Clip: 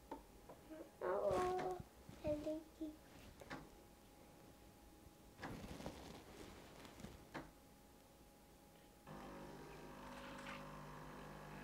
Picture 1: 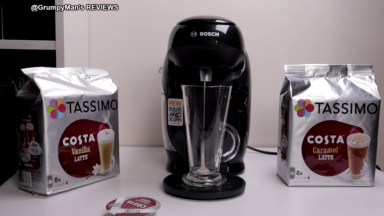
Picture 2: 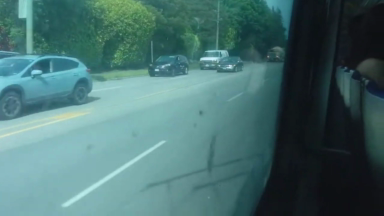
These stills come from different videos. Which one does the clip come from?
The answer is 1